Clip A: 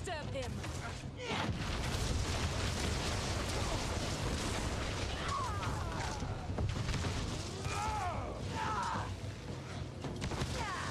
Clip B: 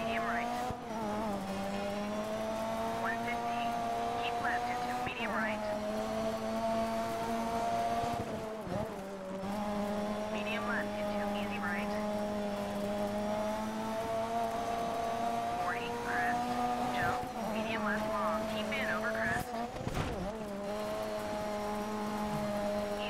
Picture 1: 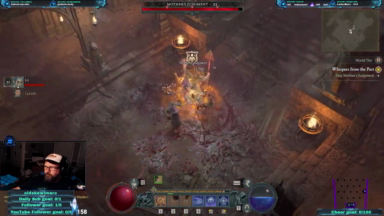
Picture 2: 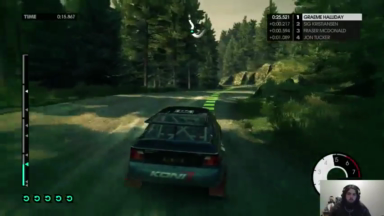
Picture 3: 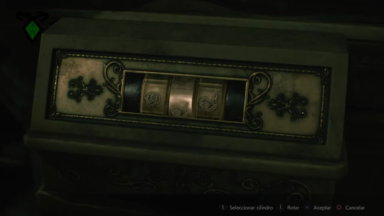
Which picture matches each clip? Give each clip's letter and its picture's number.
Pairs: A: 1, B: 2